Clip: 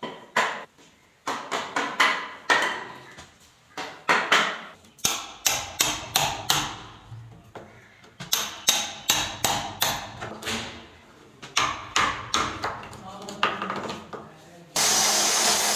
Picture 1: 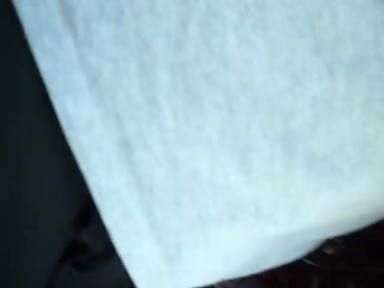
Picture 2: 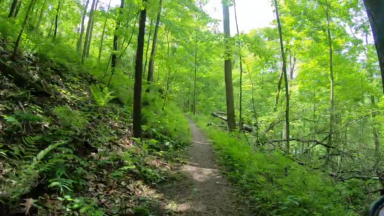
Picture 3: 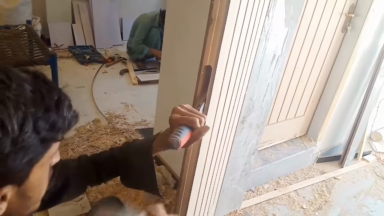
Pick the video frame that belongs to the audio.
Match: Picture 3